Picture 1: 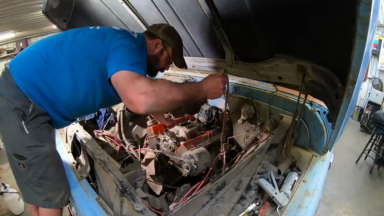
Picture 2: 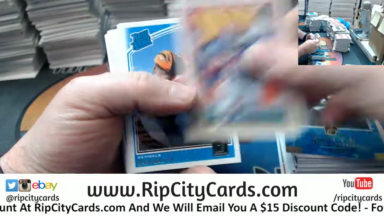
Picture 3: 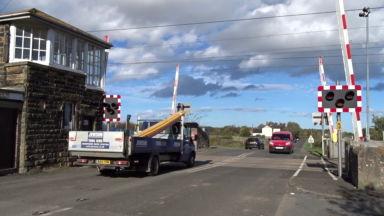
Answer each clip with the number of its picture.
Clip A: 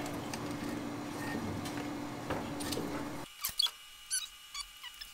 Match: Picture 1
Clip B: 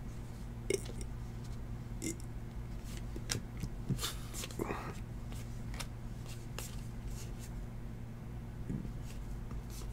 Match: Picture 2